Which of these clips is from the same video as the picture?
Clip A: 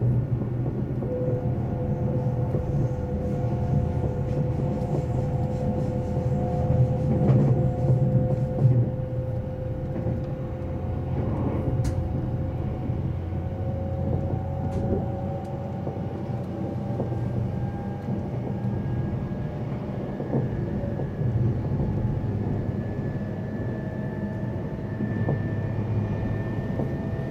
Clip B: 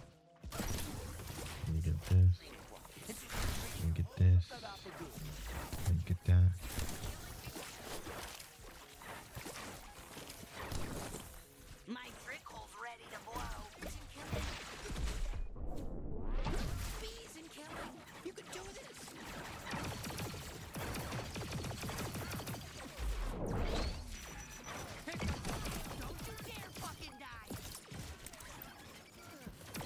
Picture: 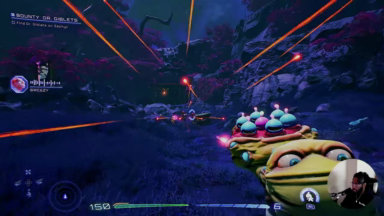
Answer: B